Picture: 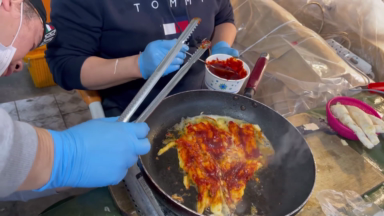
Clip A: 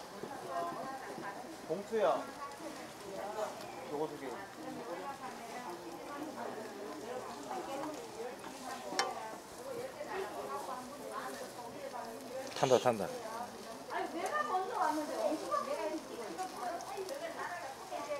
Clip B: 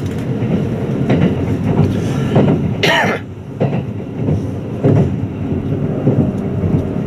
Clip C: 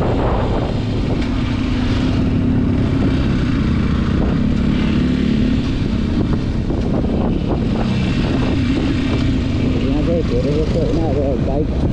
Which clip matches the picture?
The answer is A